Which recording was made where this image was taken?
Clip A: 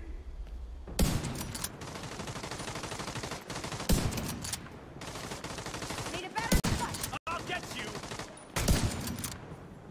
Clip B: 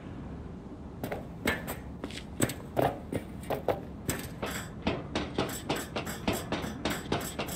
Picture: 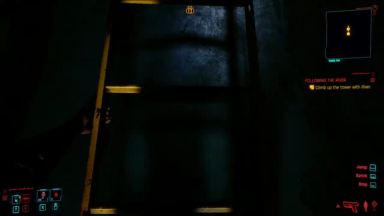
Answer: B